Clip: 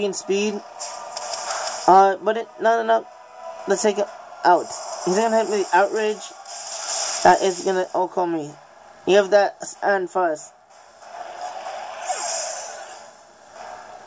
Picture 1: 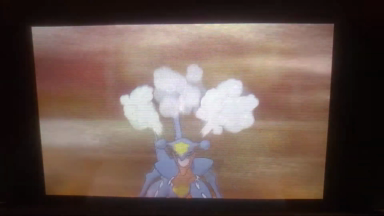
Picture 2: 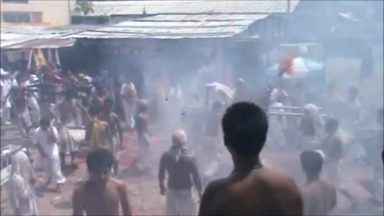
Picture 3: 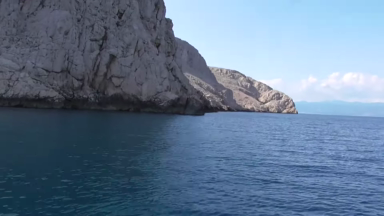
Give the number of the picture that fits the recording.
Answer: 1